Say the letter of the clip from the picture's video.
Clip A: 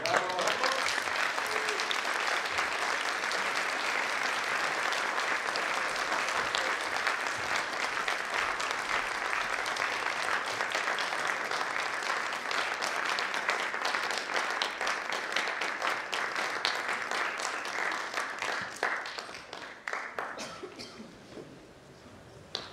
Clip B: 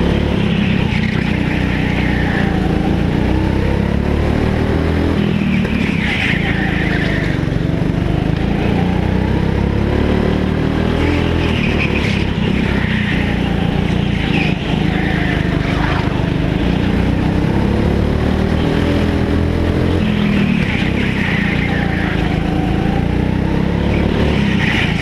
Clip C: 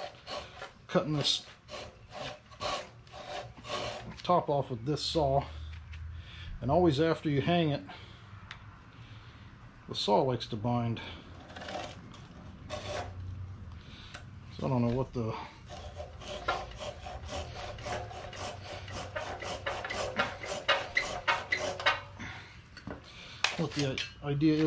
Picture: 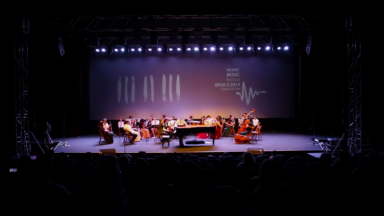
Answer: A